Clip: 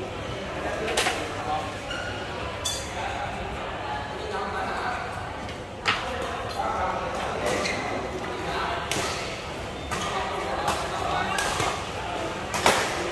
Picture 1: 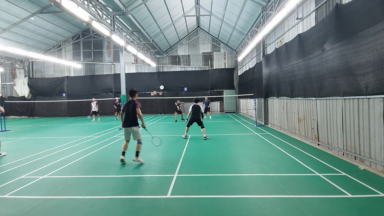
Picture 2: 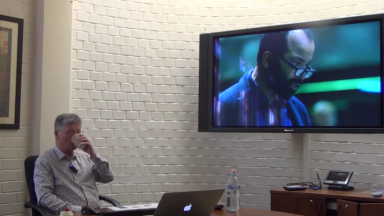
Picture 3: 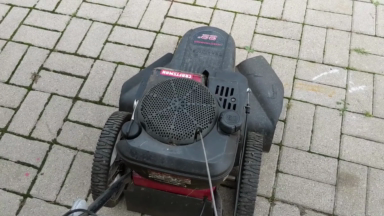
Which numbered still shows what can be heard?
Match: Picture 1